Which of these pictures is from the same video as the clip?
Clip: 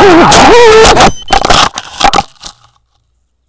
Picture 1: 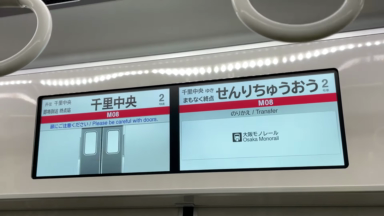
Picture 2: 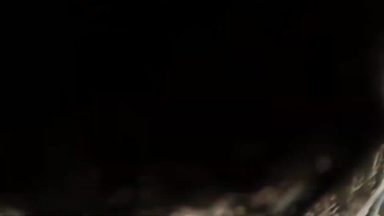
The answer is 2